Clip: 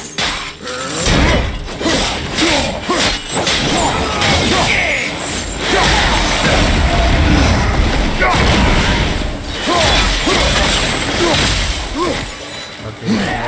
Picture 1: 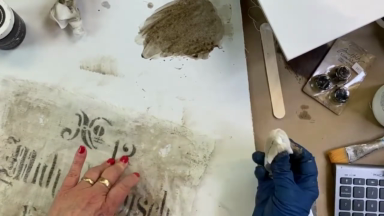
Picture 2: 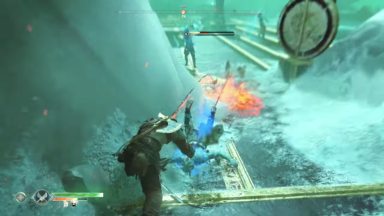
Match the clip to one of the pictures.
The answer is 2